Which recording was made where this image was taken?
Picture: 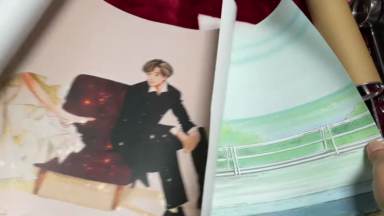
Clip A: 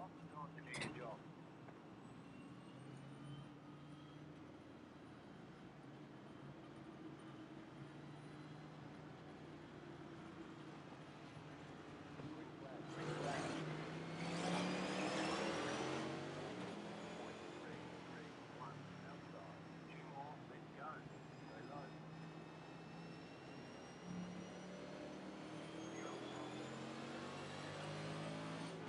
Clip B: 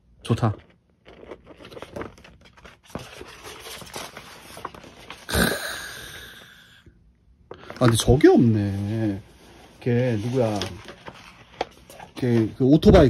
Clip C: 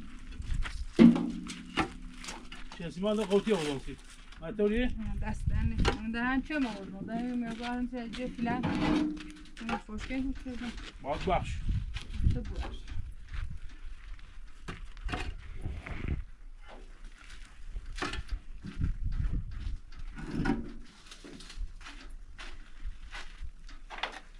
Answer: B